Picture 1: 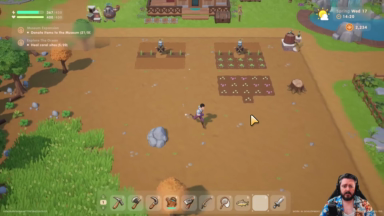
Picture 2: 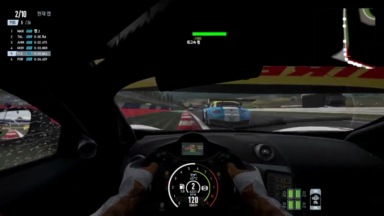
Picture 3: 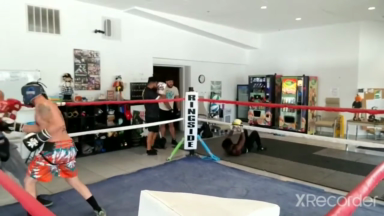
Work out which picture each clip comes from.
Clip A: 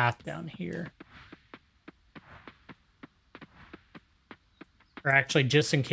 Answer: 1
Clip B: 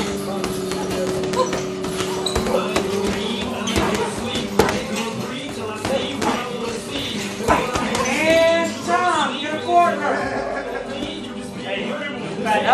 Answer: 3